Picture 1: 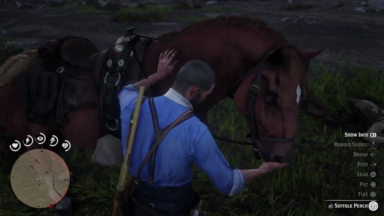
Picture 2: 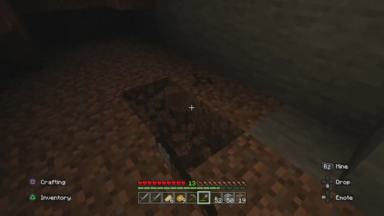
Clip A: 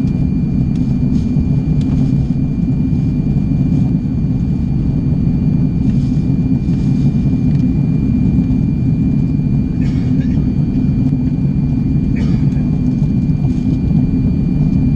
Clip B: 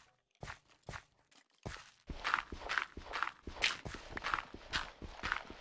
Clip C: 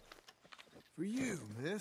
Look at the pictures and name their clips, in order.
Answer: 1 C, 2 B